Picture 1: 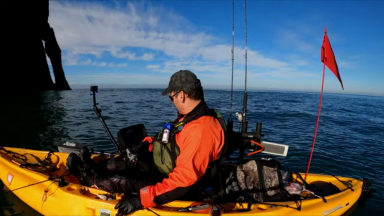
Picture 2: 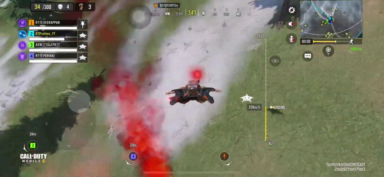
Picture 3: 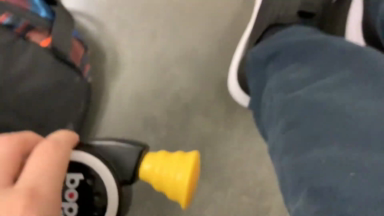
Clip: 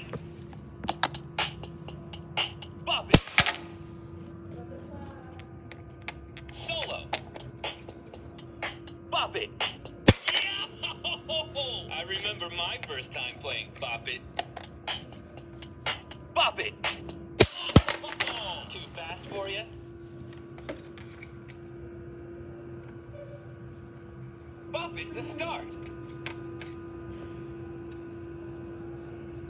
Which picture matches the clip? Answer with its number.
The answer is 3